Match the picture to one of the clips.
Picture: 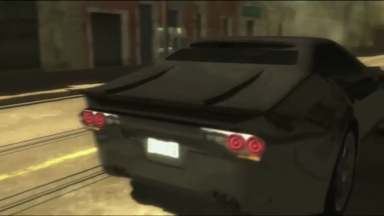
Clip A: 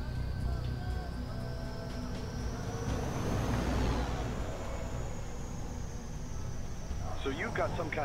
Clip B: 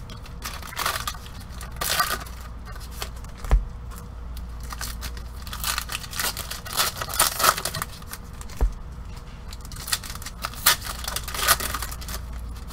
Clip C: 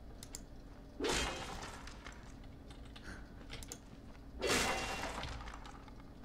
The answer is A